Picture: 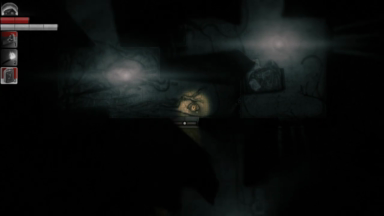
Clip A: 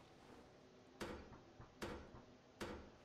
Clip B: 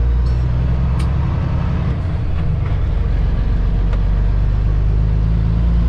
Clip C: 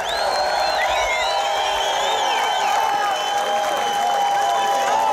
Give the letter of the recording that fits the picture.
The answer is A